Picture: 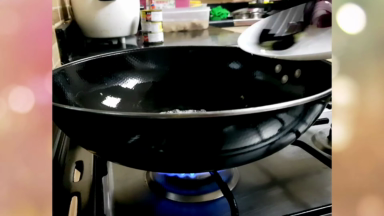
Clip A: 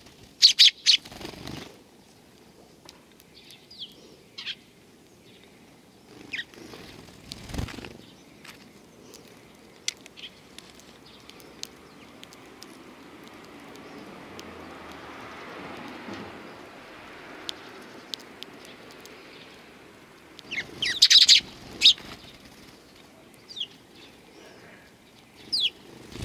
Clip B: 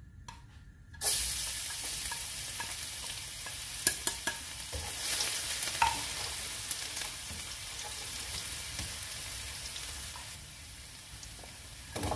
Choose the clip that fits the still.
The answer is B